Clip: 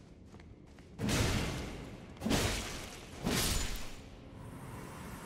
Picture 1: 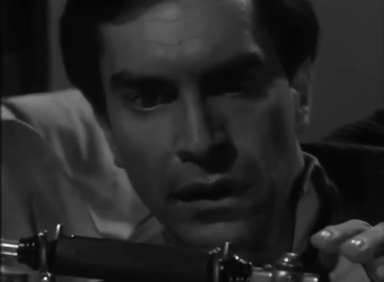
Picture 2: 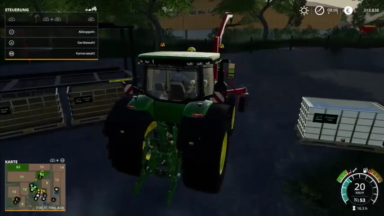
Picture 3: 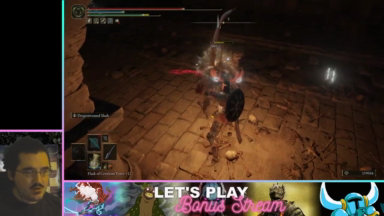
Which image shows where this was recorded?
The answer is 3